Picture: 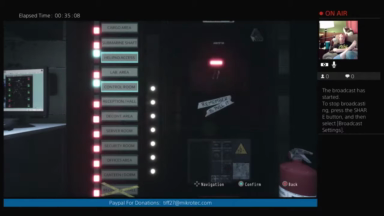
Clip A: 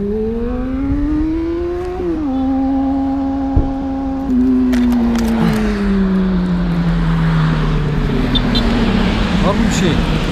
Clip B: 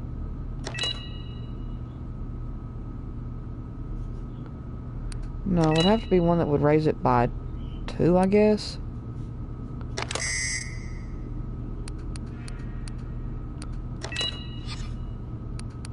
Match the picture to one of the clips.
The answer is B